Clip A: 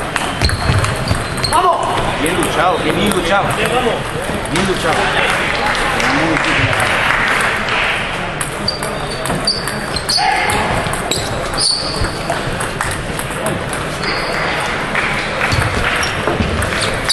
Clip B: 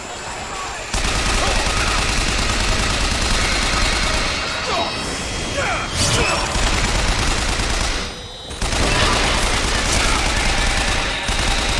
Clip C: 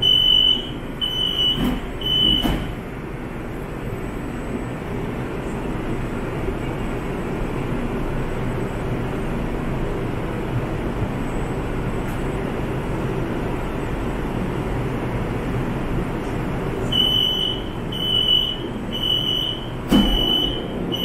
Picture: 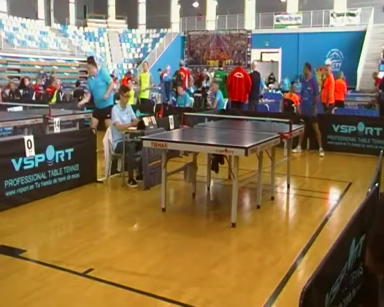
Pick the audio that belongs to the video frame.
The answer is A